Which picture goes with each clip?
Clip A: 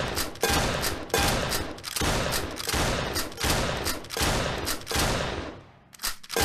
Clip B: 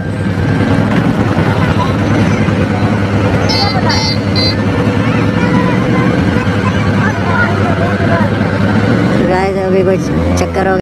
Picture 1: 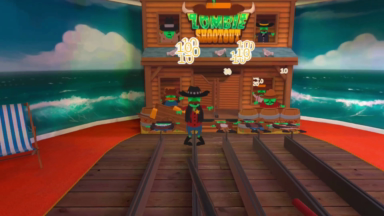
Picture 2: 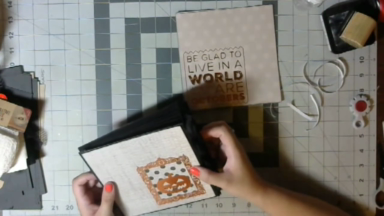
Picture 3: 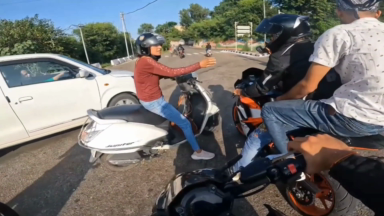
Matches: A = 1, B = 3